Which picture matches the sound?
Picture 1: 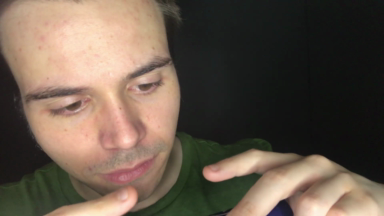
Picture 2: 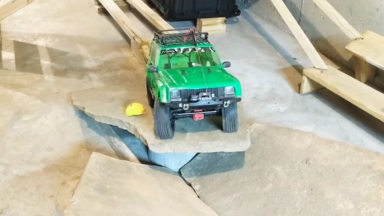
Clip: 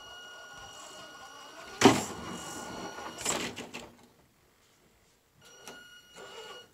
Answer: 2